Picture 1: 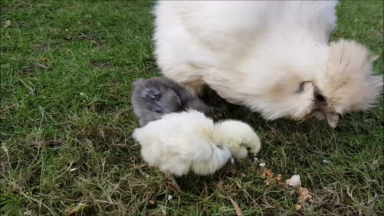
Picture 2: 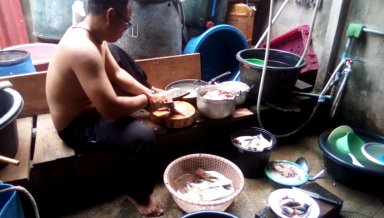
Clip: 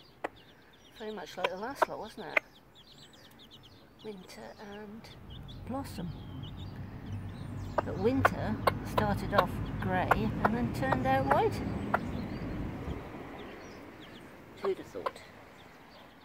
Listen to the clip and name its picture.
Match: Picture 1